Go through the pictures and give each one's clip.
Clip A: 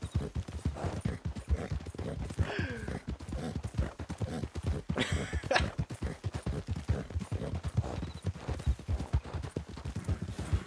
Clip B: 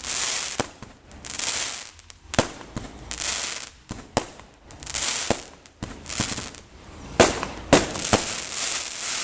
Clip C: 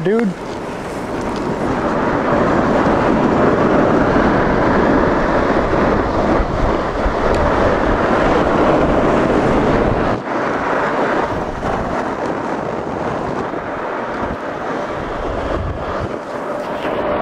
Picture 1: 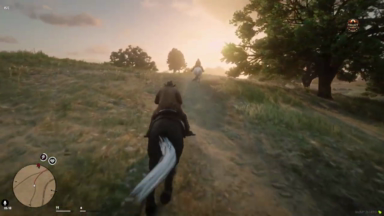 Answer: A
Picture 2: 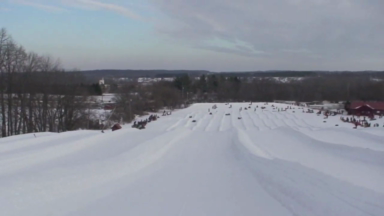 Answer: C